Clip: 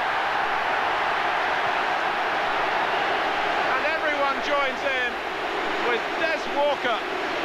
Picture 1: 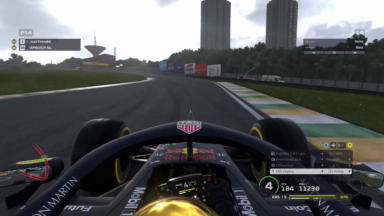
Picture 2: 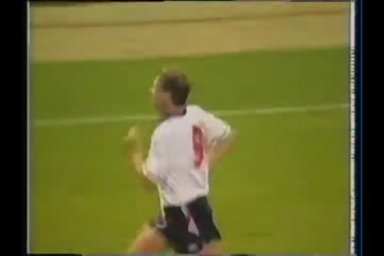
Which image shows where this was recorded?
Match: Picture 2